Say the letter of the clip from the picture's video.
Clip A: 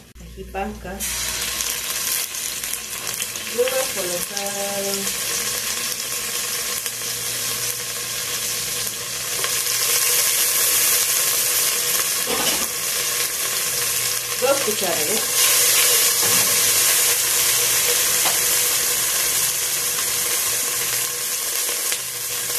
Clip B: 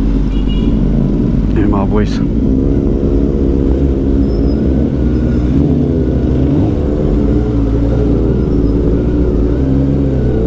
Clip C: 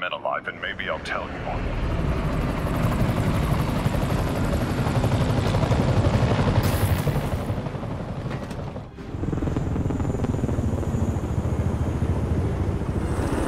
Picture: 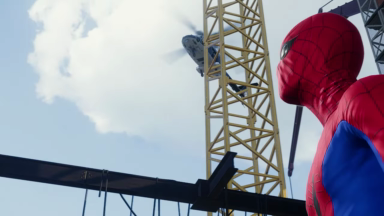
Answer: C